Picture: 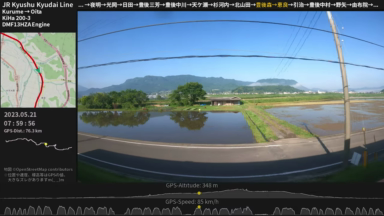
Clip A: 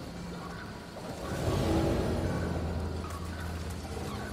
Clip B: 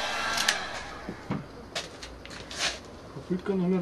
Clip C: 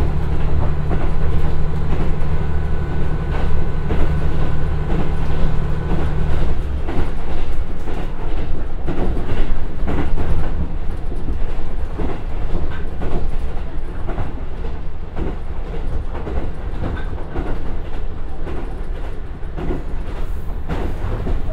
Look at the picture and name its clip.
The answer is C